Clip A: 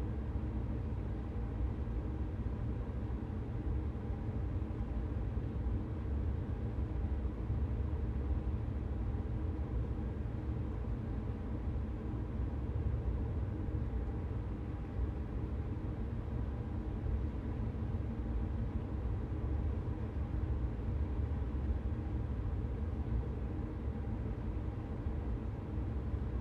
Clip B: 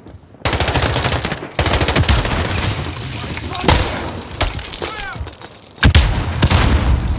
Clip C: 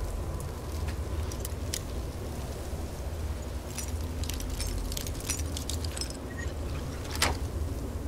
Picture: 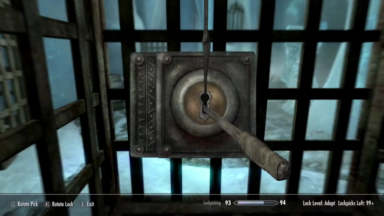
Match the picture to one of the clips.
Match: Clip C